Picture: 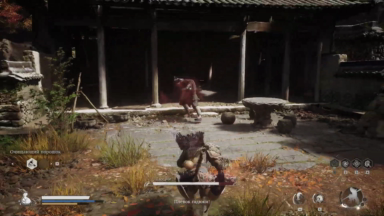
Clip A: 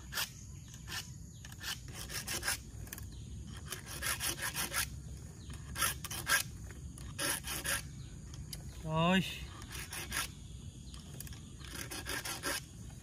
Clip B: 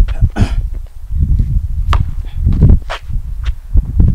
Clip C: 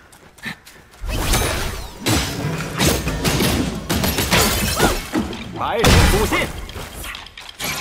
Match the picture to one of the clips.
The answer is C